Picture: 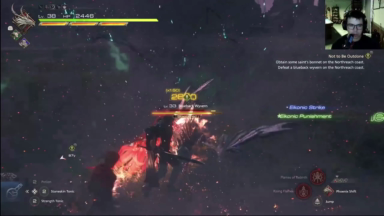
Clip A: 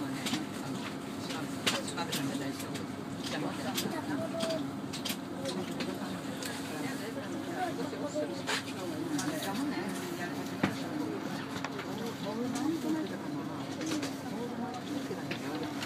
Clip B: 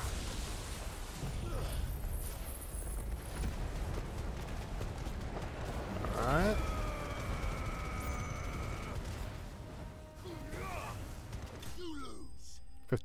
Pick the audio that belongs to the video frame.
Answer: B